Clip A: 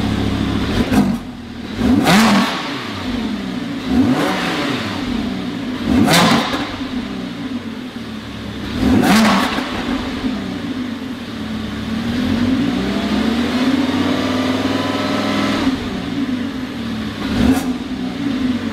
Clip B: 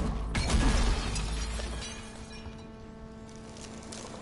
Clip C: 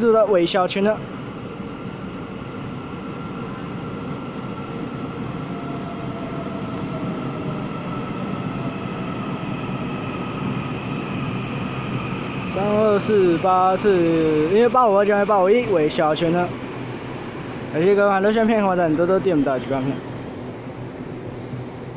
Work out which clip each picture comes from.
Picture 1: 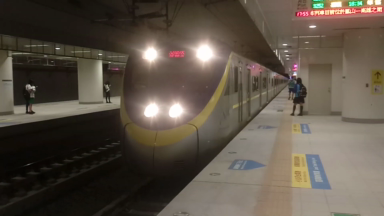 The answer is C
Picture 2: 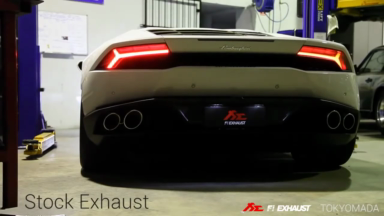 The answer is A